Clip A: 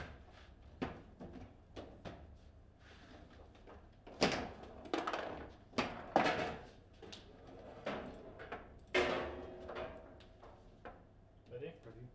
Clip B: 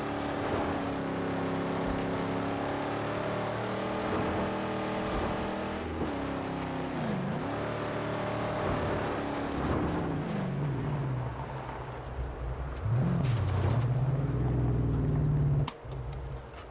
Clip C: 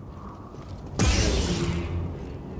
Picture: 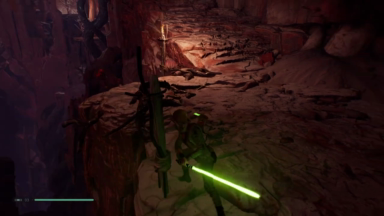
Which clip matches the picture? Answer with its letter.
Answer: C